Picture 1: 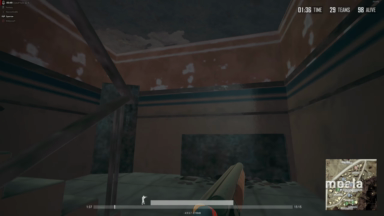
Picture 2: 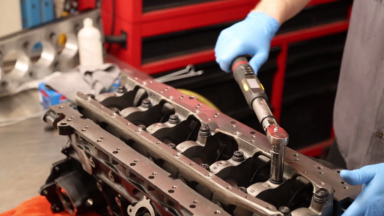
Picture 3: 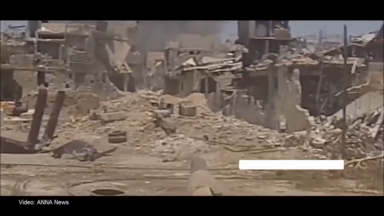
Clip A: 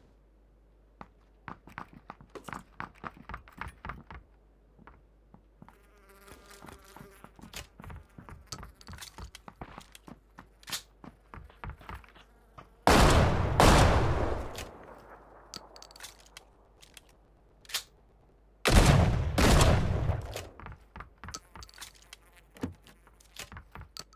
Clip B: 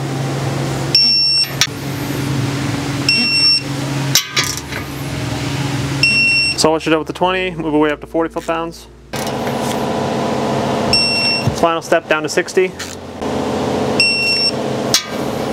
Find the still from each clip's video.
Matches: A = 1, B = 2